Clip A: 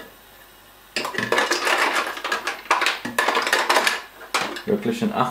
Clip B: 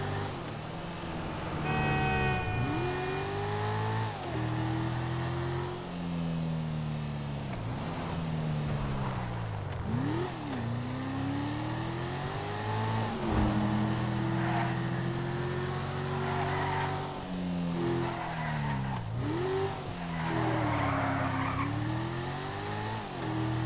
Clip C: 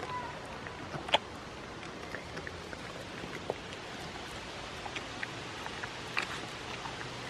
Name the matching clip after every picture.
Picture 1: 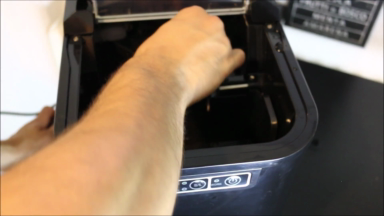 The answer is A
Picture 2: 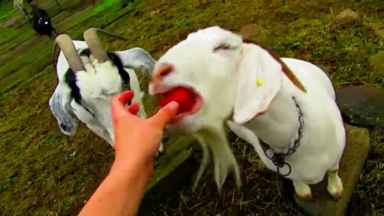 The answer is C